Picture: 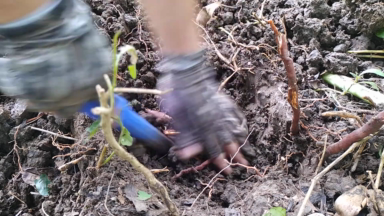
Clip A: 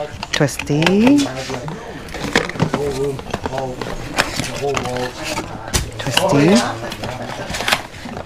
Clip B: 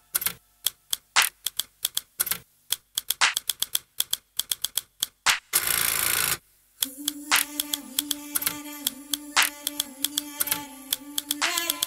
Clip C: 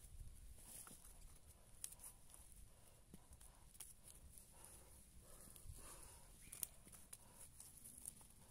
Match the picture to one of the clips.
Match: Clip C